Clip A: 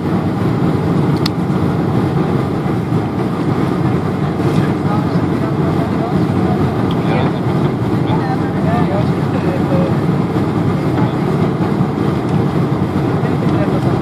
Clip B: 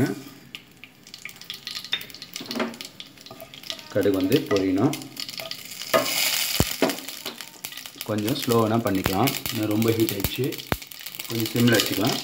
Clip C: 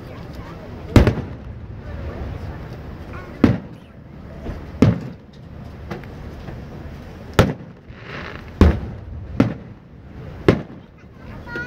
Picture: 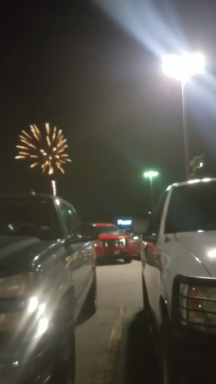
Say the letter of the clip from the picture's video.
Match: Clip C